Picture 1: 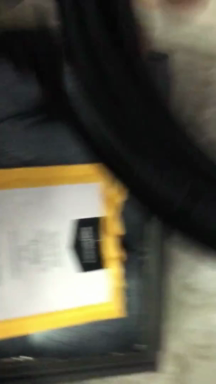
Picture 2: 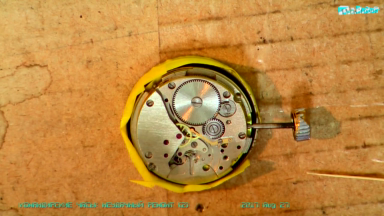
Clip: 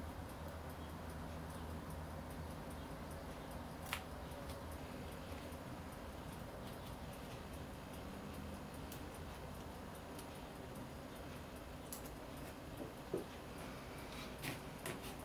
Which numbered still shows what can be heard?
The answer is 2